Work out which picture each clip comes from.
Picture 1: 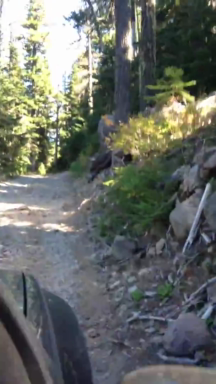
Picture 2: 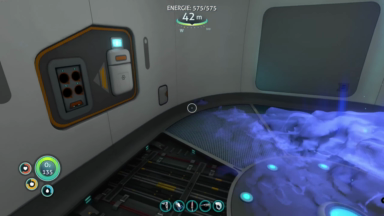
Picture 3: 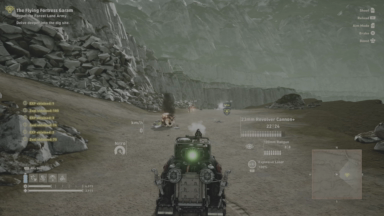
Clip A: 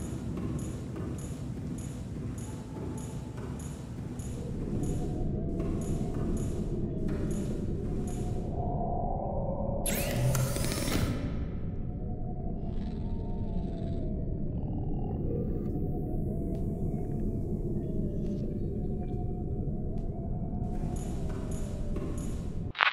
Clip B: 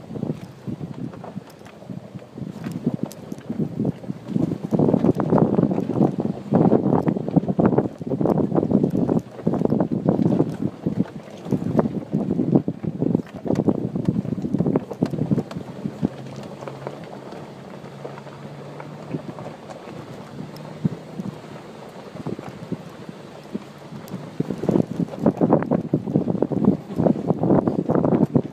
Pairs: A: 2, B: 1